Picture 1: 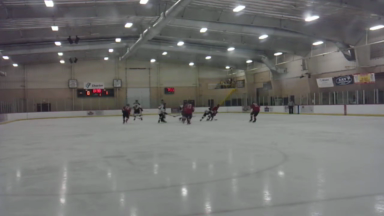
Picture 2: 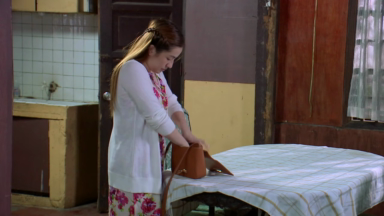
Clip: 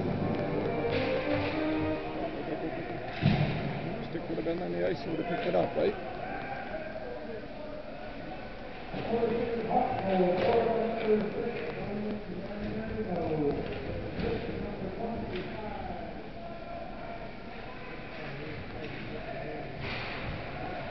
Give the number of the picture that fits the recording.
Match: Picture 1